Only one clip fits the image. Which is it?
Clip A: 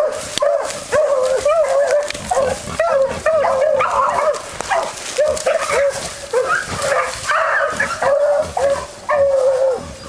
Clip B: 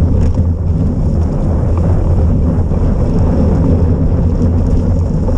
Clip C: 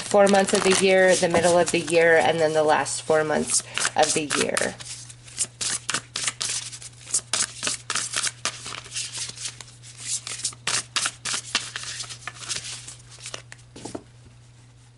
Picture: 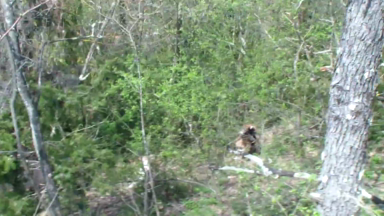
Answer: A